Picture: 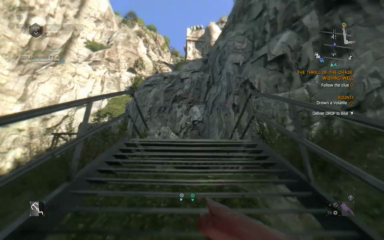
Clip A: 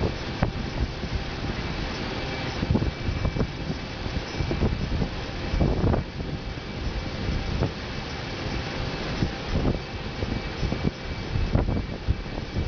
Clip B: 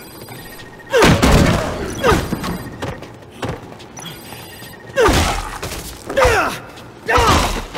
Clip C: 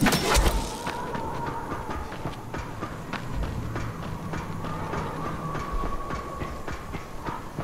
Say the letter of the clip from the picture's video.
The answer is C